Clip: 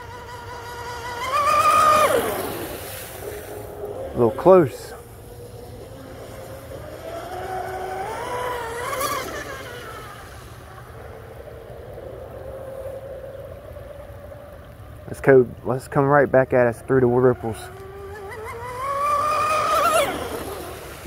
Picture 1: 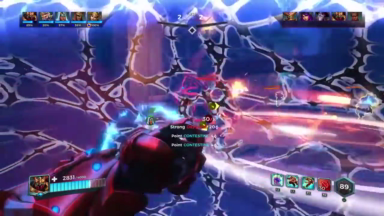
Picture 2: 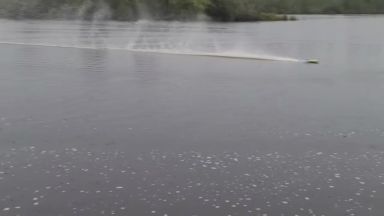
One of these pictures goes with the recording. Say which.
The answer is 2